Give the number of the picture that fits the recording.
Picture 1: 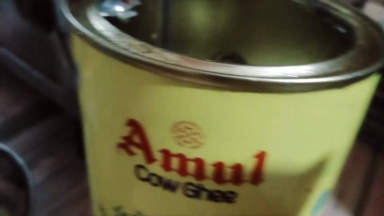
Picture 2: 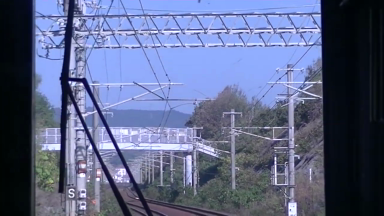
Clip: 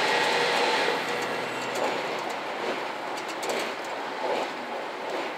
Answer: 2